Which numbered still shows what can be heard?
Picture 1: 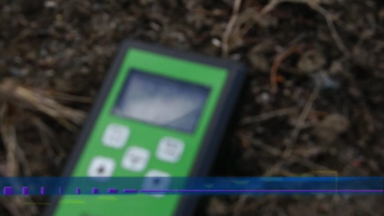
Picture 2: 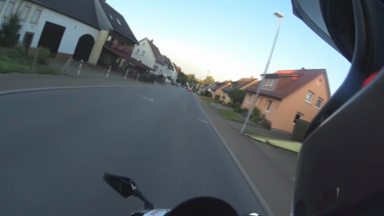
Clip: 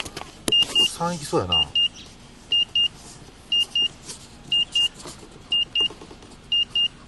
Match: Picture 1